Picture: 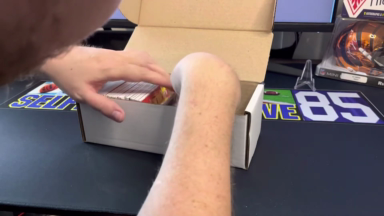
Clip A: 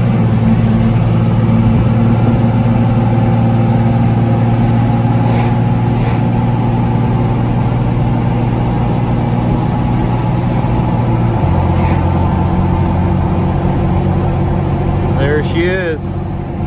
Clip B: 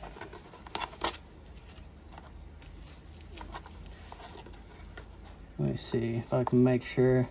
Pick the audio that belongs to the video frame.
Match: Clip B